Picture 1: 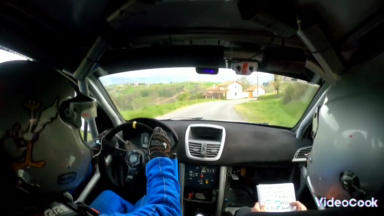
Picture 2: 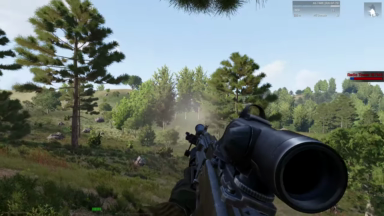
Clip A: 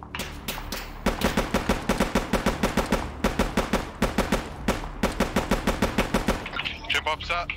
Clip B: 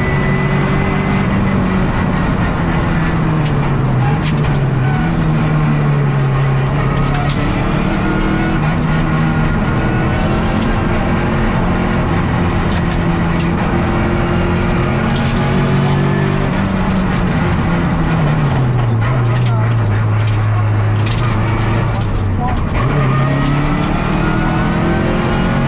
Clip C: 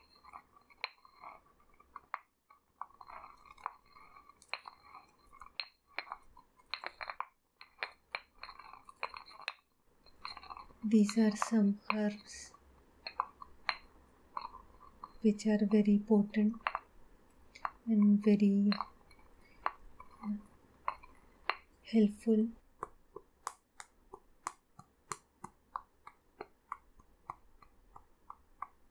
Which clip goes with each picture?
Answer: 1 B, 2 A